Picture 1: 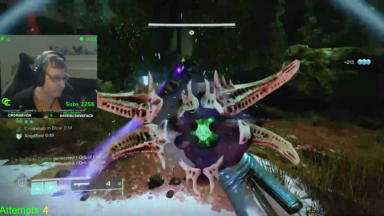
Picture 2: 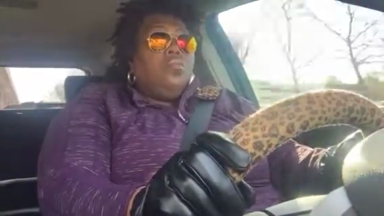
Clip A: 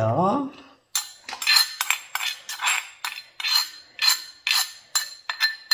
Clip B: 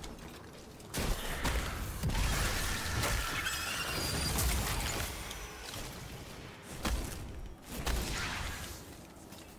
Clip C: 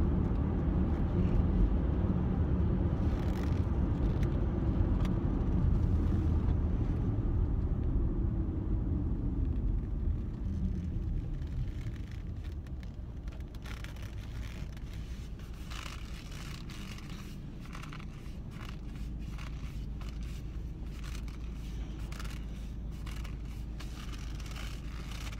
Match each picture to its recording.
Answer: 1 B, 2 C